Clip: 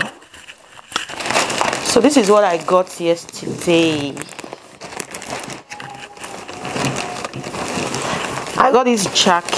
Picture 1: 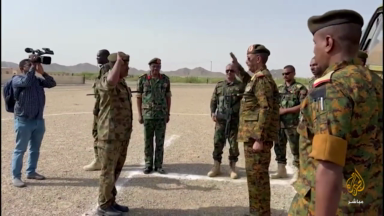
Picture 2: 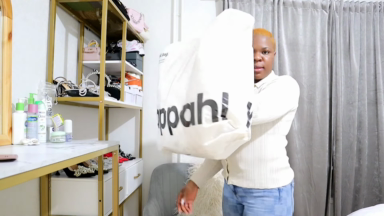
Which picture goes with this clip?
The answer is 2